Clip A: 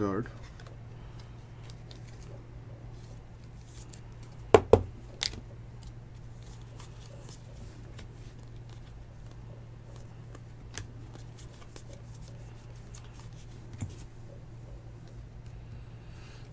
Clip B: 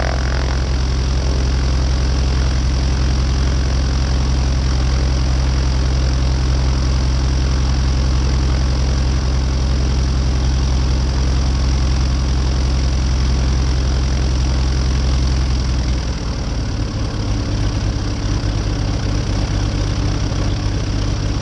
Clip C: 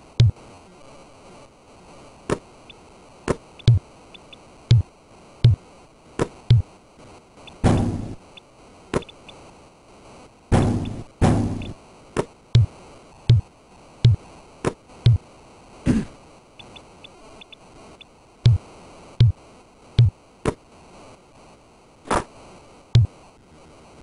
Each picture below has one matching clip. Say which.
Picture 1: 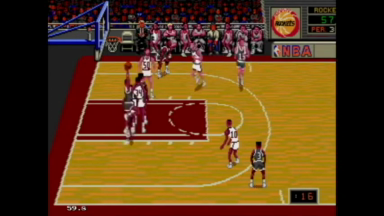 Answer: C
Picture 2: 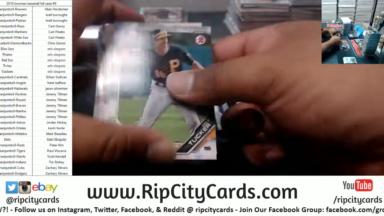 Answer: A